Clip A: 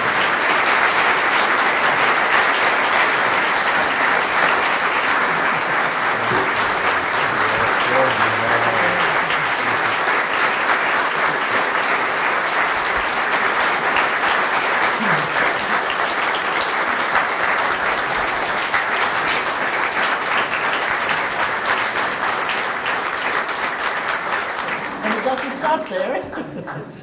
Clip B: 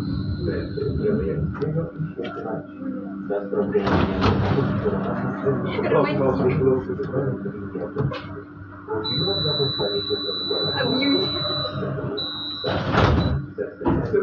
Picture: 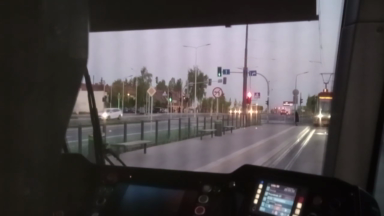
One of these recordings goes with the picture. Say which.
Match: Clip B